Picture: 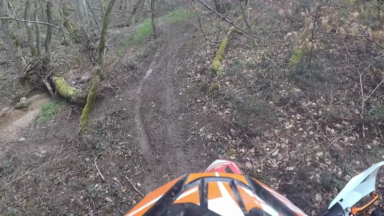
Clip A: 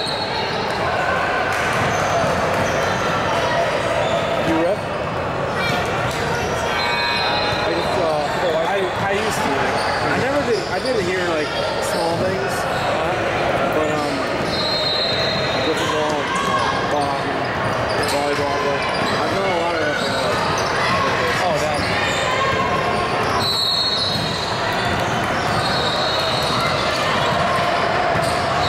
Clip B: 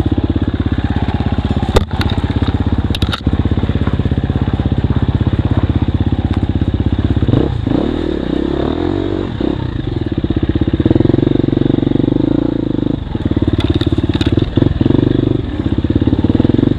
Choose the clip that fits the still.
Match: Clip B